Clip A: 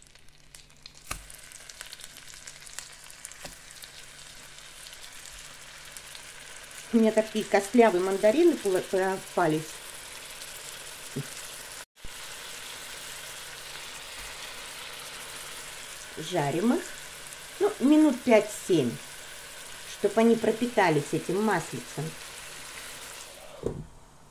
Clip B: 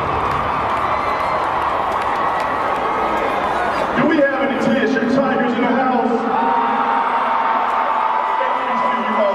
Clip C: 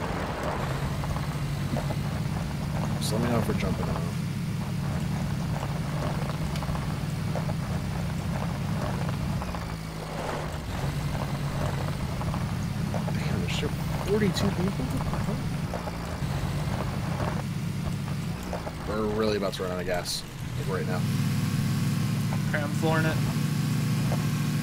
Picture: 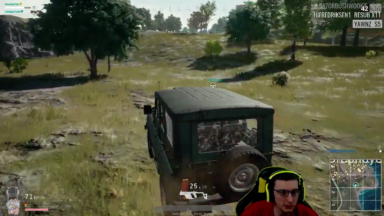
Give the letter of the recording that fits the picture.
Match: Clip C